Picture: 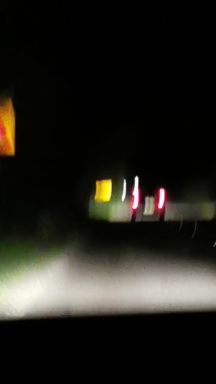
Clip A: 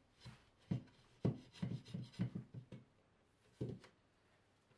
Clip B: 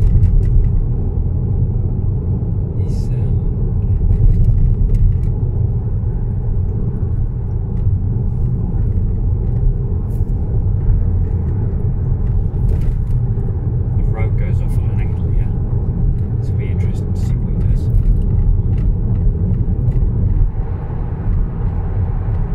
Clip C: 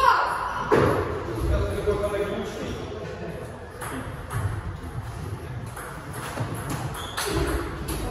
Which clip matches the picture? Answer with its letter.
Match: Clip B